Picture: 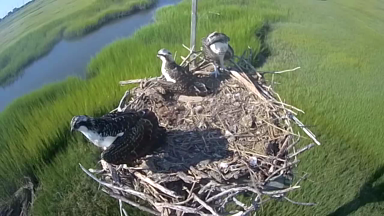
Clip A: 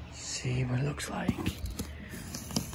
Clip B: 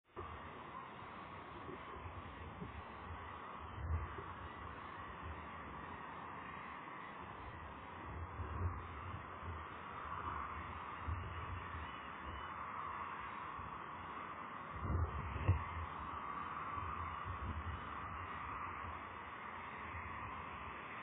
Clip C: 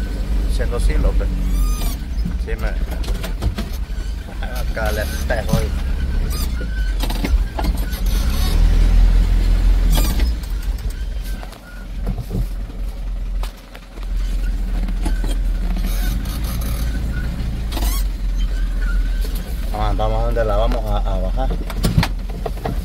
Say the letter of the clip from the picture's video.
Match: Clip B